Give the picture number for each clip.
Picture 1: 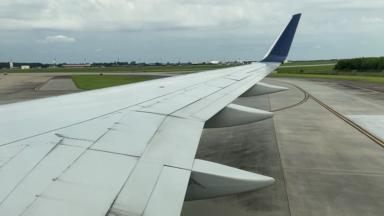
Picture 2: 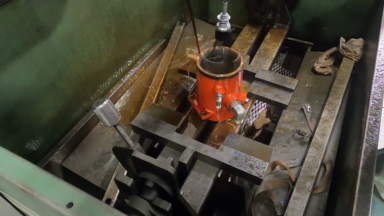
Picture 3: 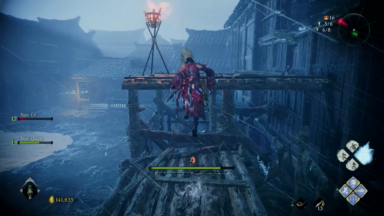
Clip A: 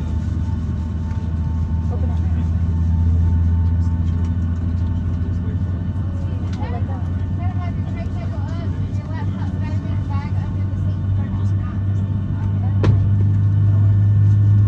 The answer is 1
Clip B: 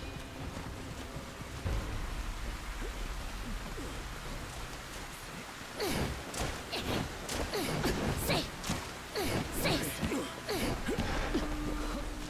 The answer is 3